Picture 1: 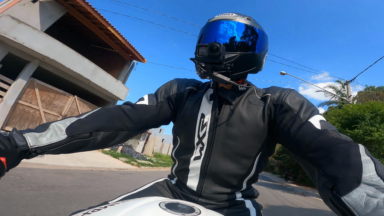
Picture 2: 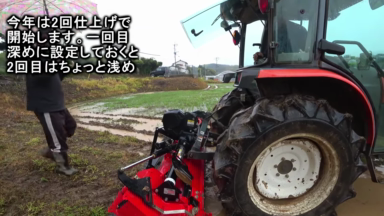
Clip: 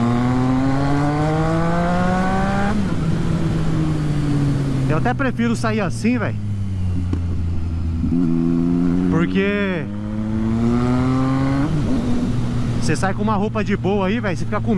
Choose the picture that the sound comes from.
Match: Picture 1